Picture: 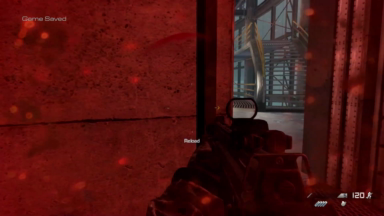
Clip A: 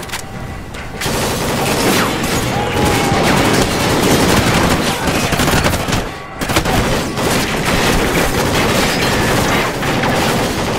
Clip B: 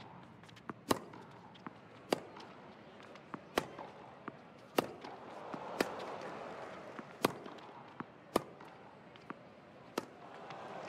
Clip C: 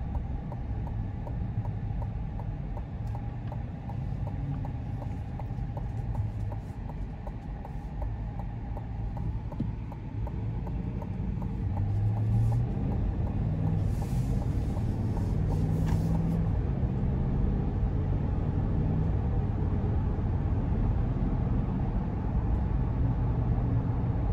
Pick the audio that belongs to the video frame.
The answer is A